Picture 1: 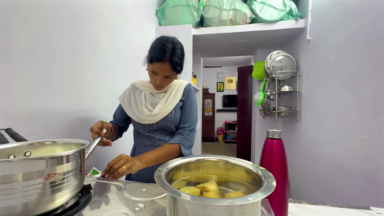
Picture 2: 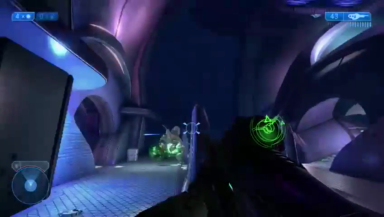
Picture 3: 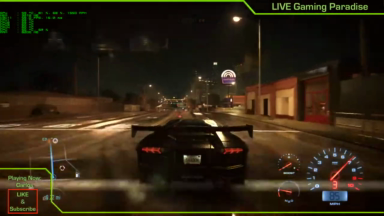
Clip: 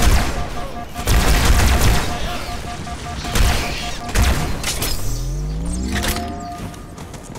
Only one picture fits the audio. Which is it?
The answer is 2